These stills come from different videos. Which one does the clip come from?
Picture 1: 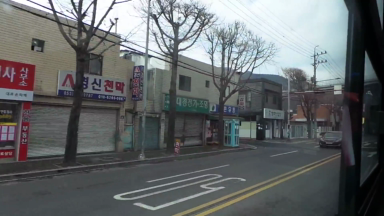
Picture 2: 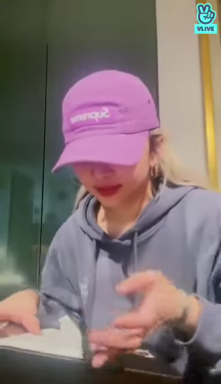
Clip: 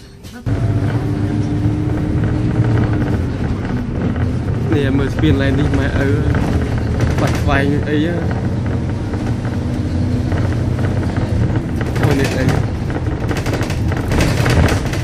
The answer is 1